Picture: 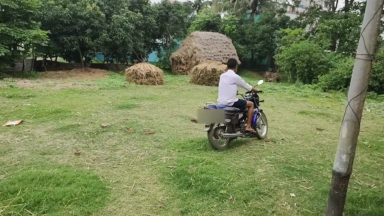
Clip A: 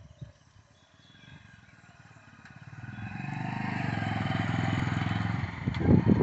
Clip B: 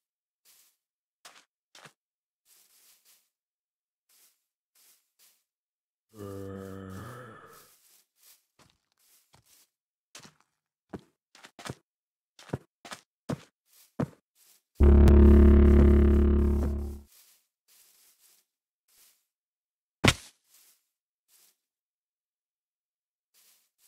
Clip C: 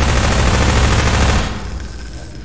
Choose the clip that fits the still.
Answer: A